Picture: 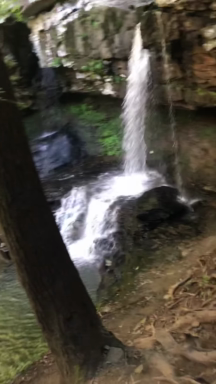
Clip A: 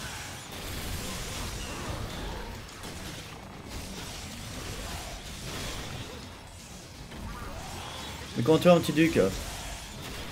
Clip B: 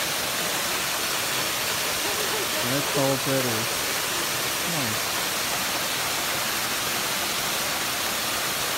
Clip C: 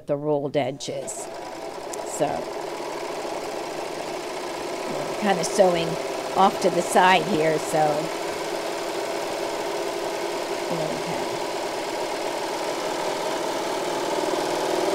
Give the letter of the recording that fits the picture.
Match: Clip B